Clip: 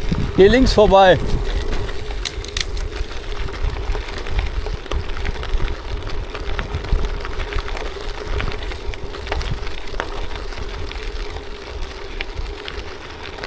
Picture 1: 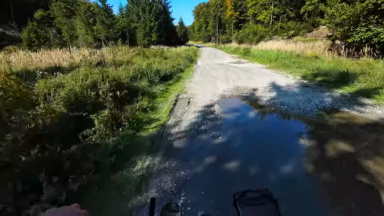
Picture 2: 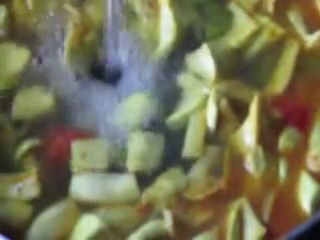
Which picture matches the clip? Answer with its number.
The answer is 1